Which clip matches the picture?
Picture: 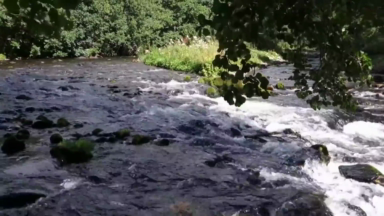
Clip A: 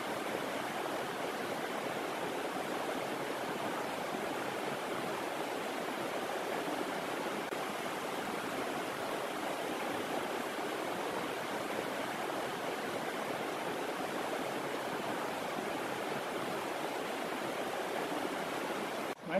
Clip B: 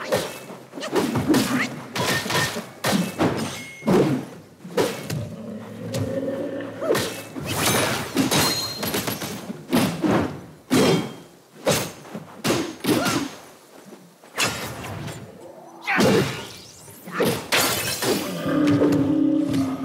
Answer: A